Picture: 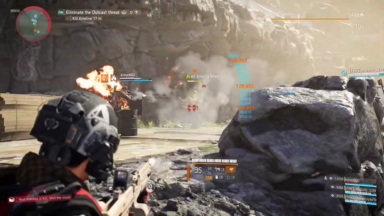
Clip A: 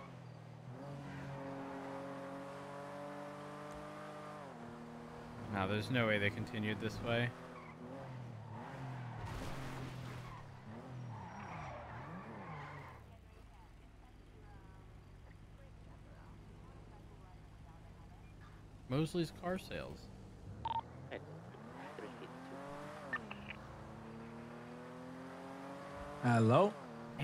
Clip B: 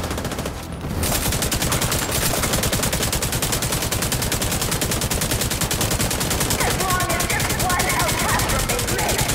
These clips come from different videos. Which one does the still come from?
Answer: B